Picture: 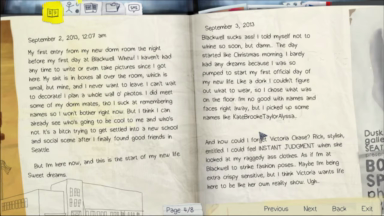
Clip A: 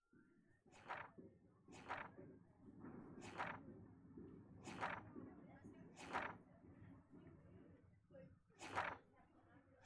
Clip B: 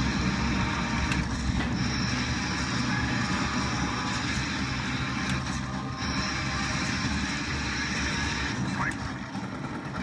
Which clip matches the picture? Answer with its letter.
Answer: A